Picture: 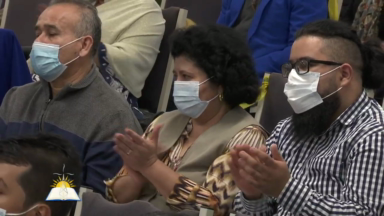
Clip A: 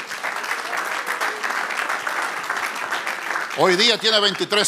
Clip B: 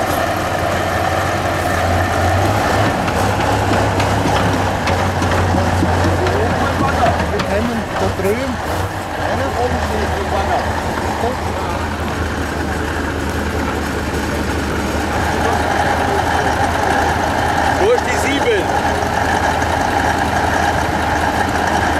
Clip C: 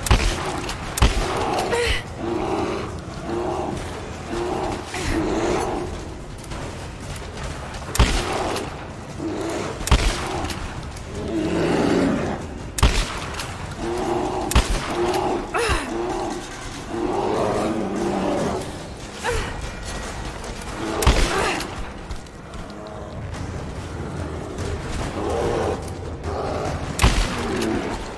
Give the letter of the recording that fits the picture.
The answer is A